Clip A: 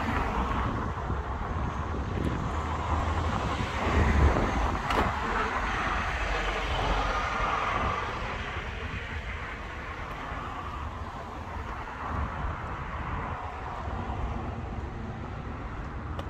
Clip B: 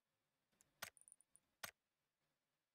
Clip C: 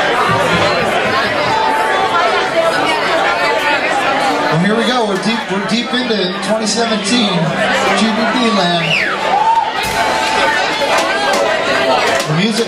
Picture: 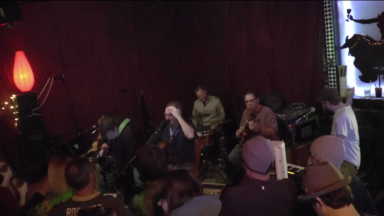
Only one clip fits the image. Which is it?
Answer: C